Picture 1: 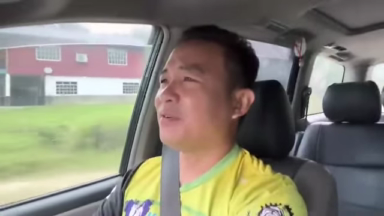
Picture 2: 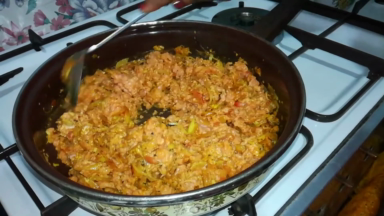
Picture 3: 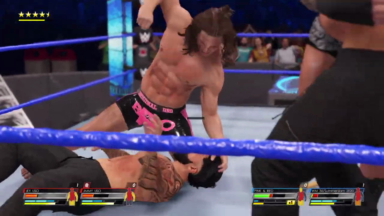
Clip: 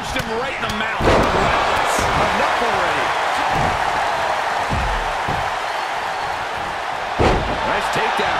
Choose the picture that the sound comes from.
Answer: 3